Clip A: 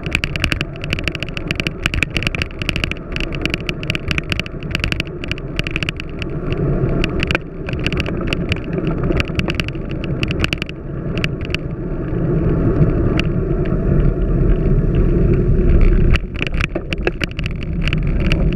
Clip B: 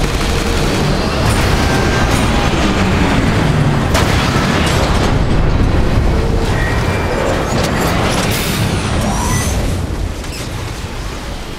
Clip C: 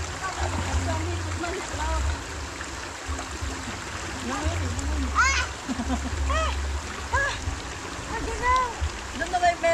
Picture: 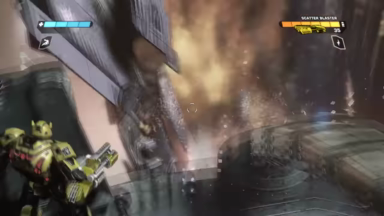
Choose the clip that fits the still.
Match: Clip B